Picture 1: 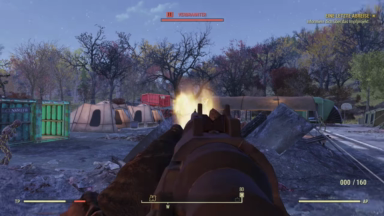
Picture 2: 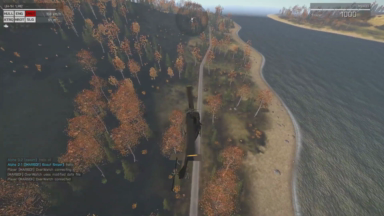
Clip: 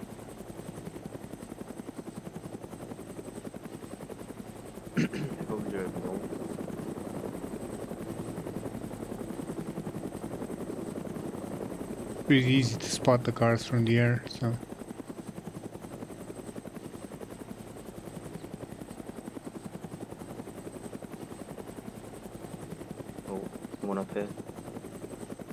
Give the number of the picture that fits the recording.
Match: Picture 2